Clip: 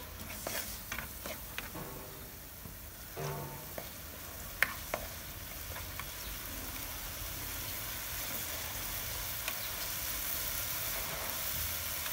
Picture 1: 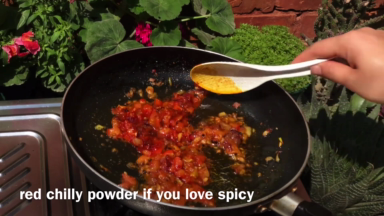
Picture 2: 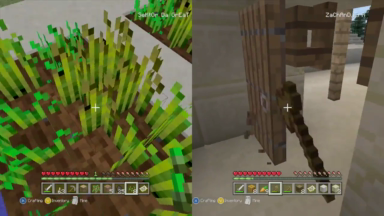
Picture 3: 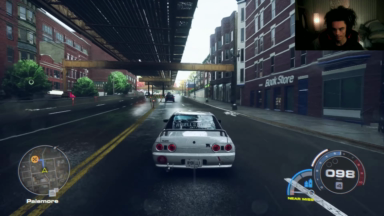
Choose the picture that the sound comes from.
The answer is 1